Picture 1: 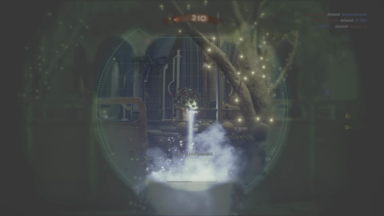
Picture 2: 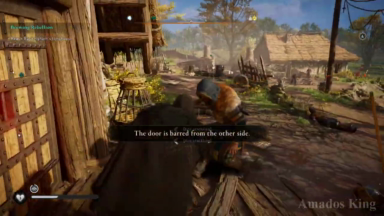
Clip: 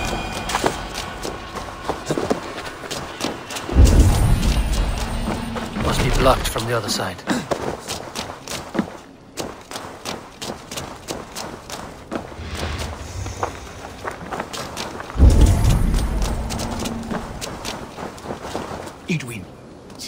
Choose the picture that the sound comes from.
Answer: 2